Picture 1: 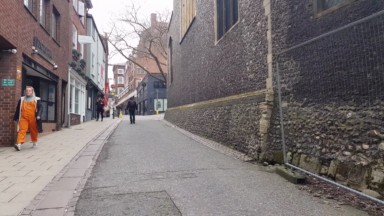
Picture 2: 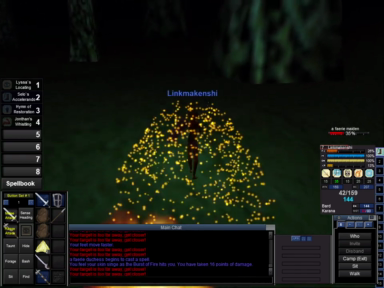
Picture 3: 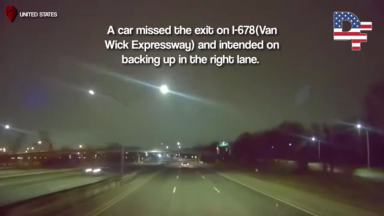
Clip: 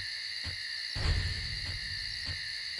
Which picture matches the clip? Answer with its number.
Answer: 2